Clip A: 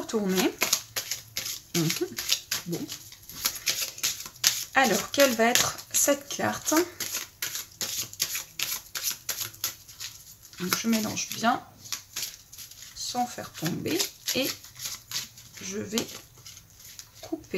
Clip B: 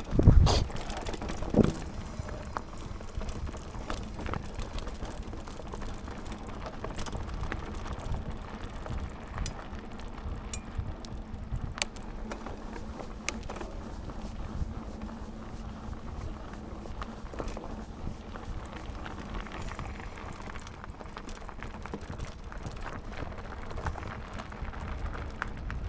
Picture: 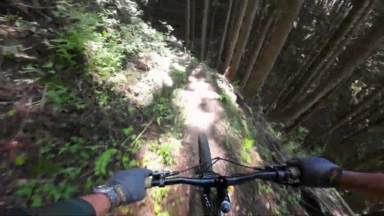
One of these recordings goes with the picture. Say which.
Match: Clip B